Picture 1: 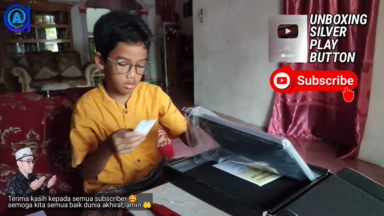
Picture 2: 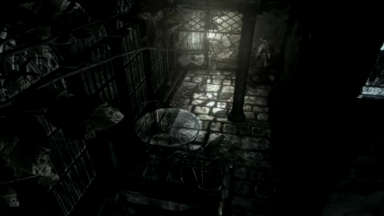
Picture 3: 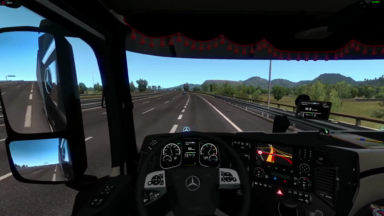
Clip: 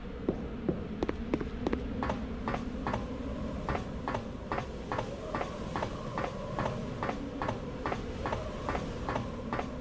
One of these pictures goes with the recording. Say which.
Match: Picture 2